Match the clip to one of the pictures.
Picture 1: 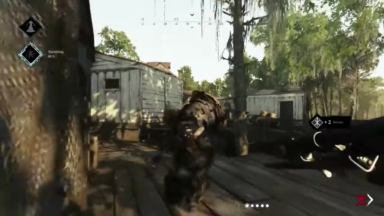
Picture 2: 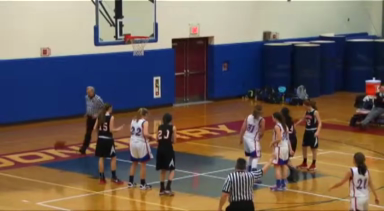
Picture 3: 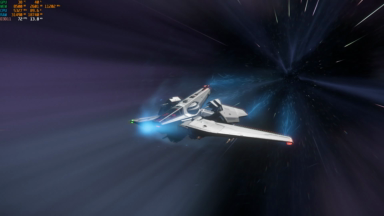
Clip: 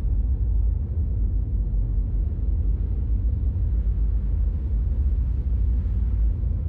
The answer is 3